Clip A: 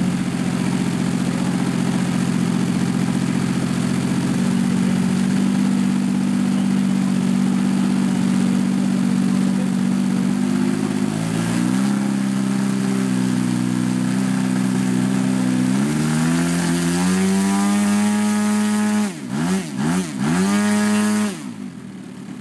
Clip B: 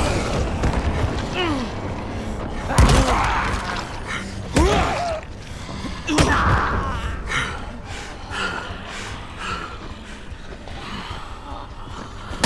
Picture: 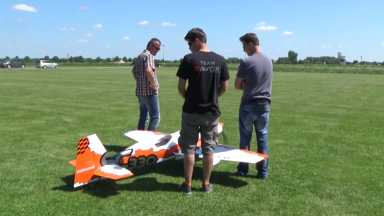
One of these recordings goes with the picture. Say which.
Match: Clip A